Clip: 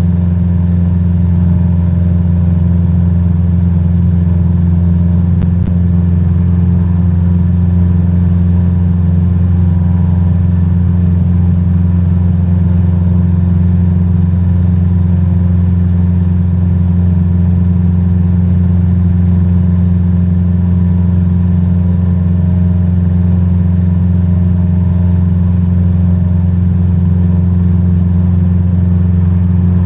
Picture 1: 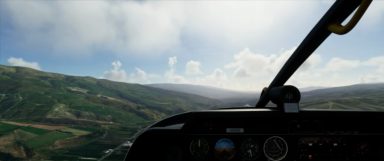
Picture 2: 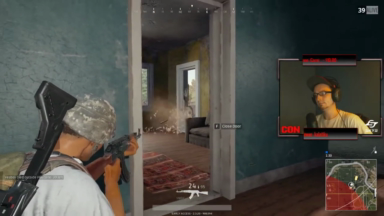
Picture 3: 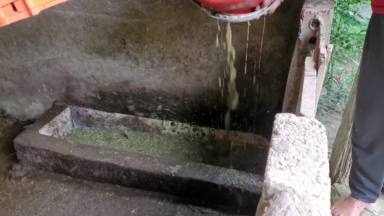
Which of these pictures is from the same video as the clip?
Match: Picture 1